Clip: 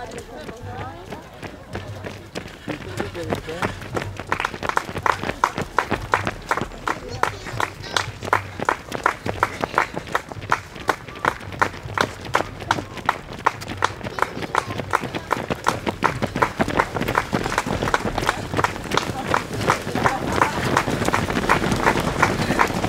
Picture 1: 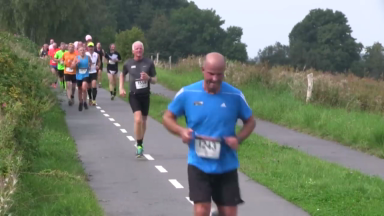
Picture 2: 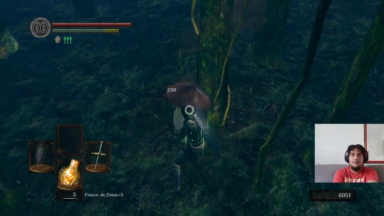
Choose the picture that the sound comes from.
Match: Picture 1